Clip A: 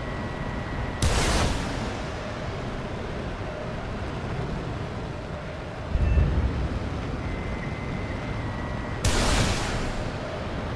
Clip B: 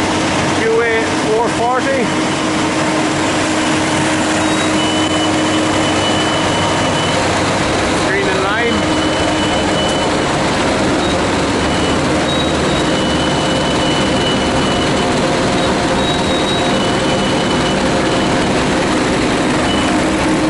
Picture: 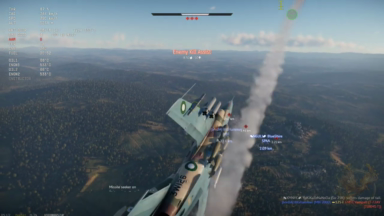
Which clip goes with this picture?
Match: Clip A